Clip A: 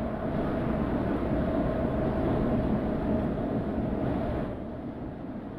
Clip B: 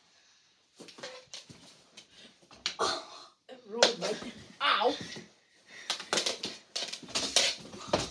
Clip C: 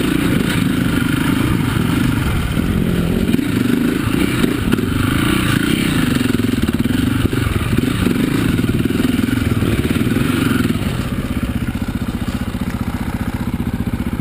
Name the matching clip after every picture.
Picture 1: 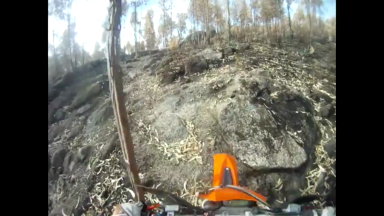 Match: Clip C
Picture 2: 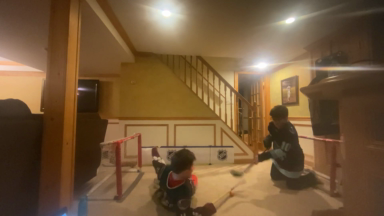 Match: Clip B